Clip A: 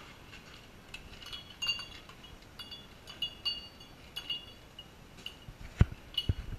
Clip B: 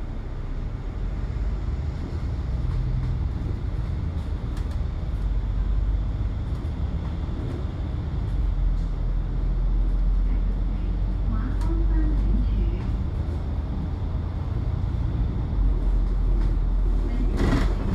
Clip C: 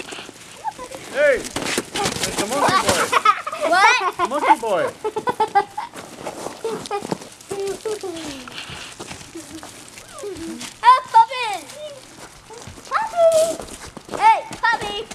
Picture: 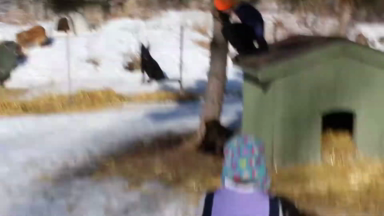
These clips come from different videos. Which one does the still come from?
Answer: C